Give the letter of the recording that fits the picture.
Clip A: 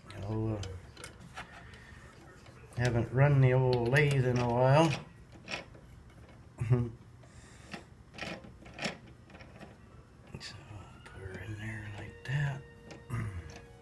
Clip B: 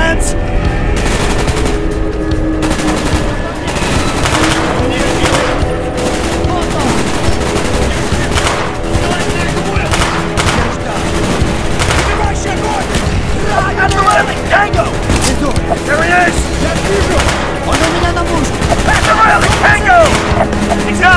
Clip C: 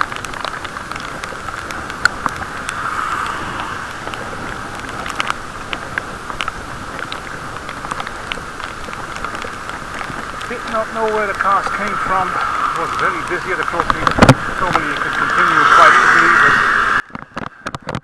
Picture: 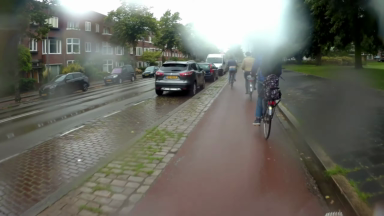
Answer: C